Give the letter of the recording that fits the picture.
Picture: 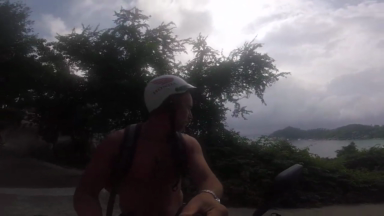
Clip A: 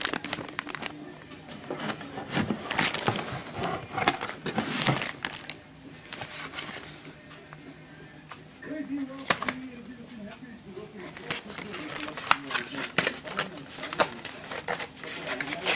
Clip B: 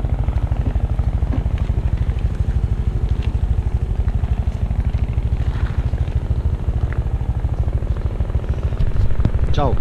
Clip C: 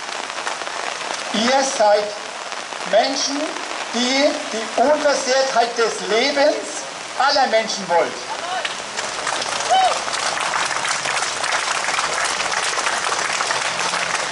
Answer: B